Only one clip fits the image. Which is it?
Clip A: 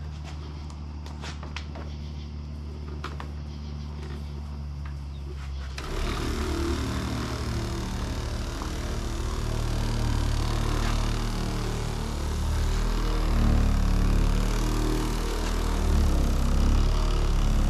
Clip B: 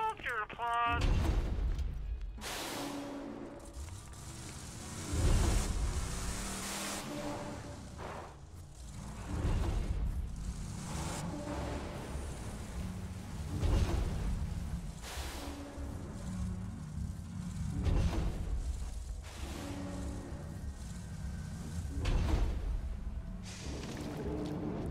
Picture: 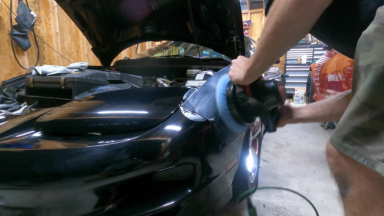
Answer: A